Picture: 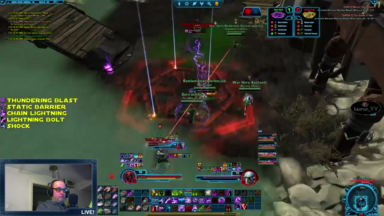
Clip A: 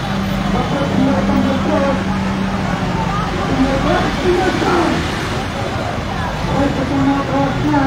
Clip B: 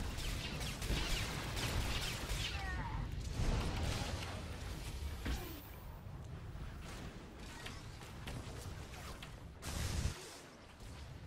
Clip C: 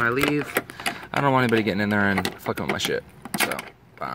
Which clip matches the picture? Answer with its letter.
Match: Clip B